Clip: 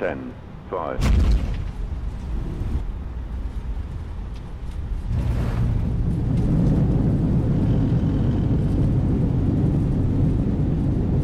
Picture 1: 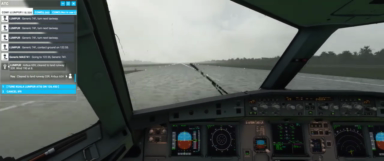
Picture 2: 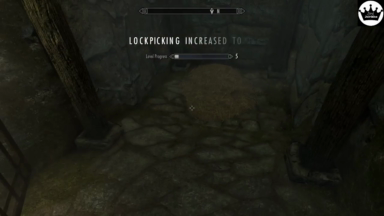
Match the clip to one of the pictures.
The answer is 1